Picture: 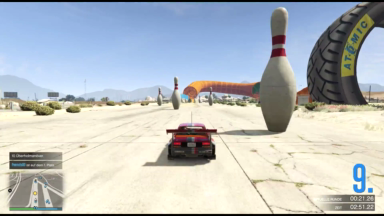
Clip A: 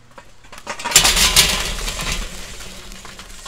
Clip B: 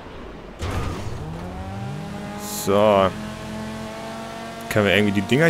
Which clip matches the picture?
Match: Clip B